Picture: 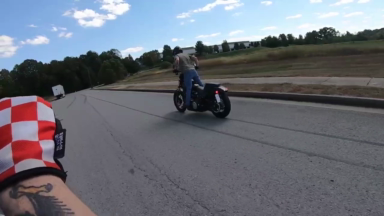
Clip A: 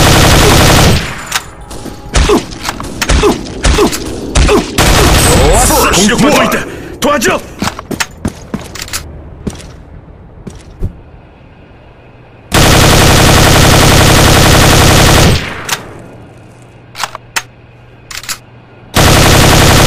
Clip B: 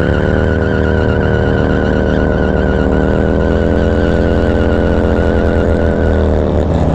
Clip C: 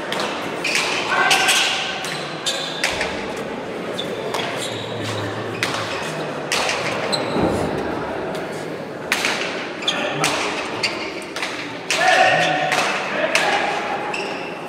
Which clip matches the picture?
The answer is B